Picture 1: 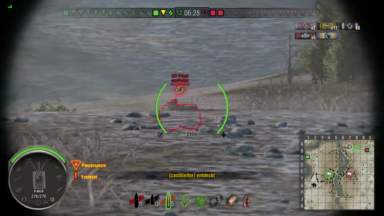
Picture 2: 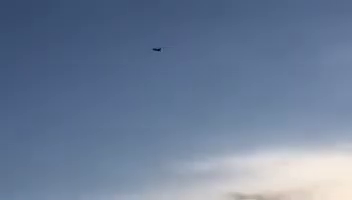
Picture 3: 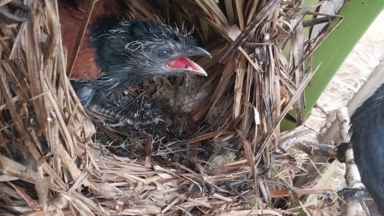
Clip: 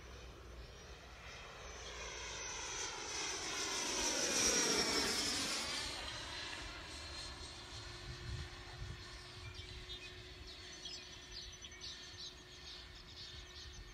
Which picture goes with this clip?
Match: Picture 2